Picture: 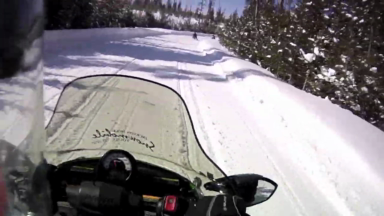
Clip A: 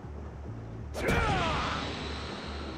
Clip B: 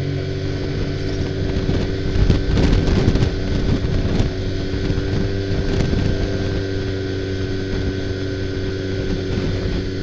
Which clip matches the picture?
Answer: B